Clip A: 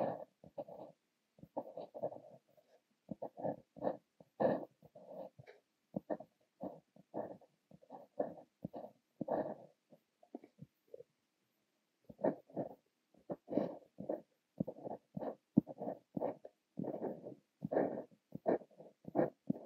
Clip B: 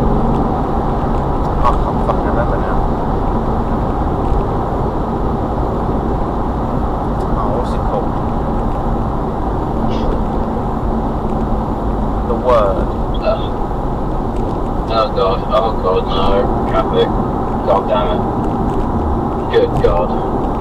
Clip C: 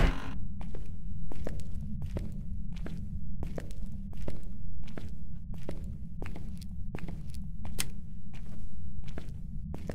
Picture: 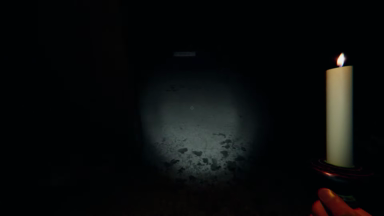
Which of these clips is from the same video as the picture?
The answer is C